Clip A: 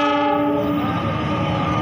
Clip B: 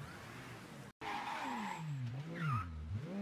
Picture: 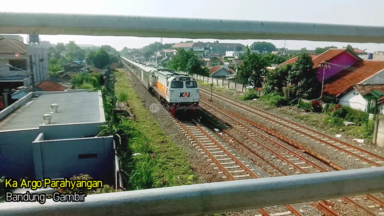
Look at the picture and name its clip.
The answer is A